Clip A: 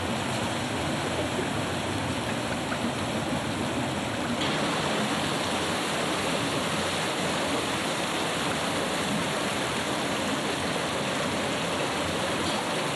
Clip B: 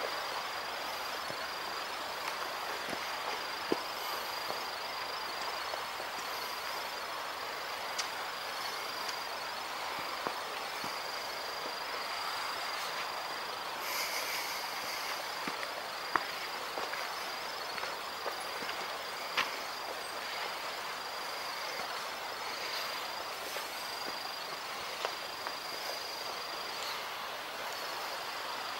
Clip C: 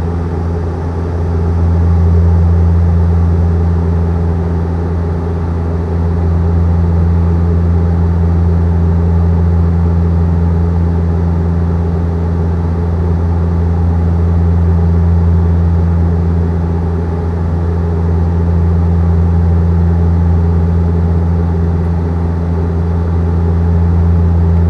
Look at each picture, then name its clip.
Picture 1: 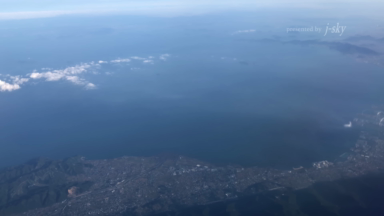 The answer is C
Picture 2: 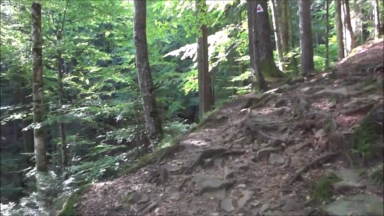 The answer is B